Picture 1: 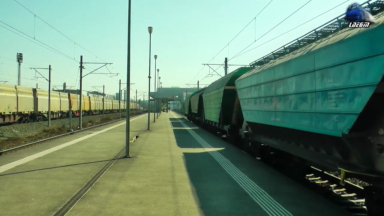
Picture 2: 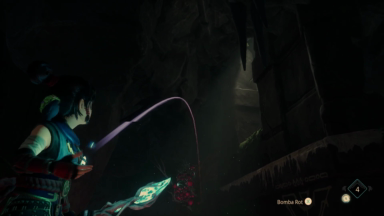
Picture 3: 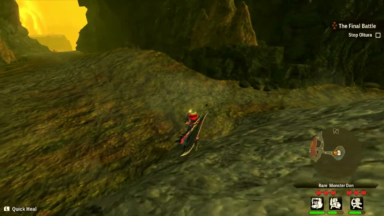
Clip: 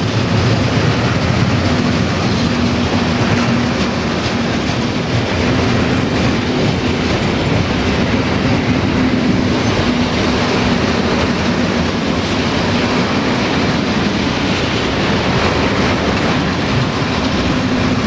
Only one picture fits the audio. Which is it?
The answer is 1